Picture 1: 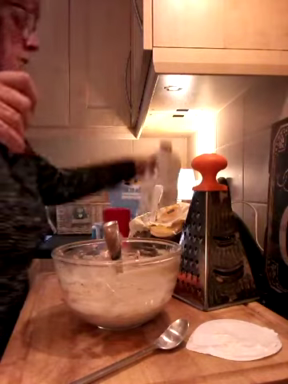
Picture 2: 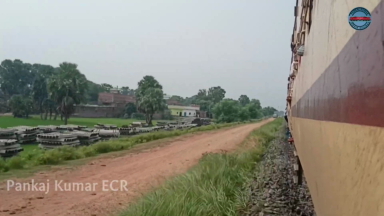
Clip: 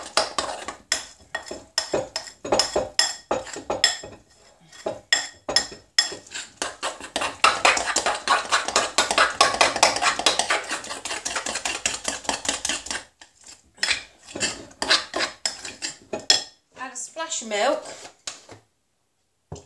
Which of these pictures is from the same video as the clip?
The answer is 1